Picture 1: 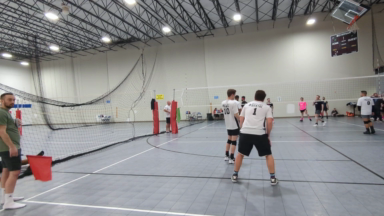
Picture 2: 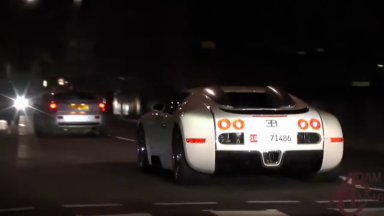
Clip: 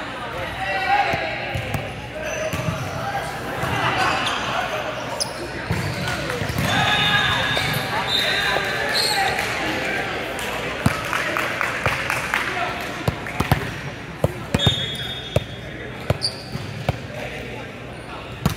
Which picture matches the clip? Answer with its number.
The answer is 1